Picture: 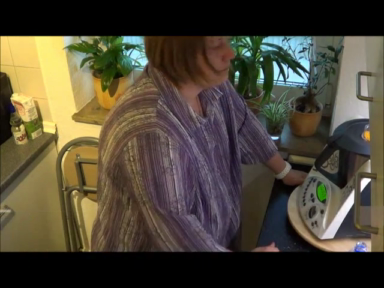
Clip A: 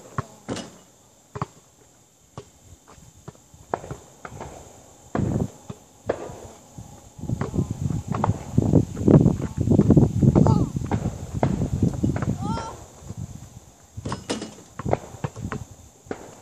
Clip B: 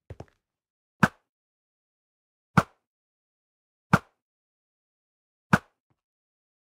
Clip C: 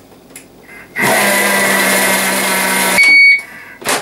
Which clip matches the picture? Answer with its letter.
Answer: C